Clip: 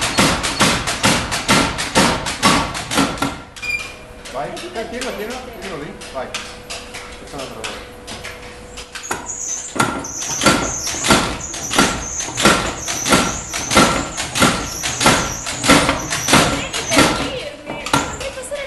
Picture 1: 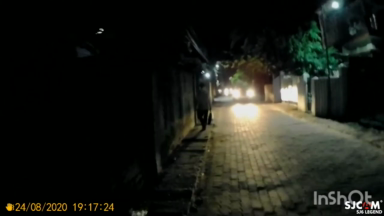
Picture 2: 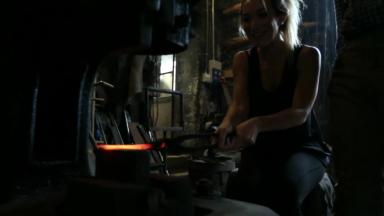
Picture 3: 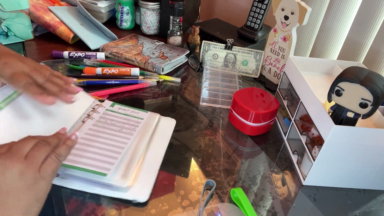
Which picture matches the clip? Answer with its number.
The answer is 2